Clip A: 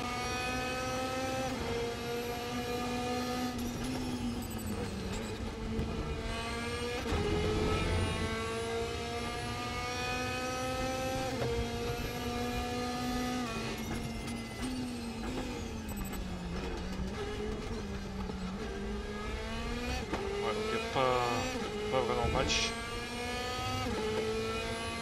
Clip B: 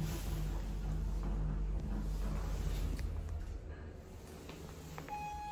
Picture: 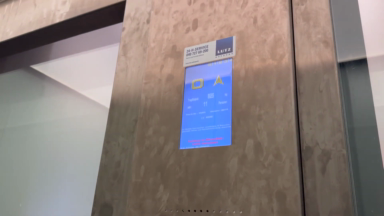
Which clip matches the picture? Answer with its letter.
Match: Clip B